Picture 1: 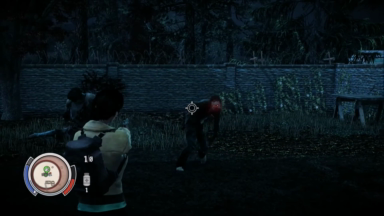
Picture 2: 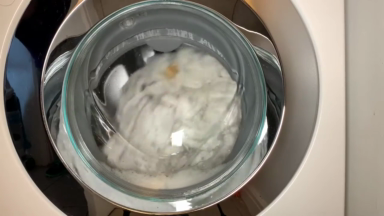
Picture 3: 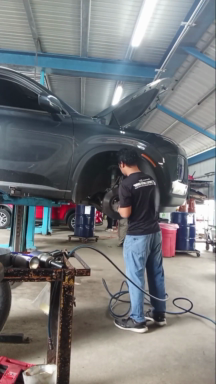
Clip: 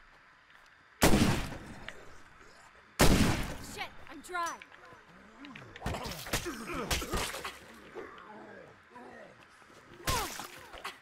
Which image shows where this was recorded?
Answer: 1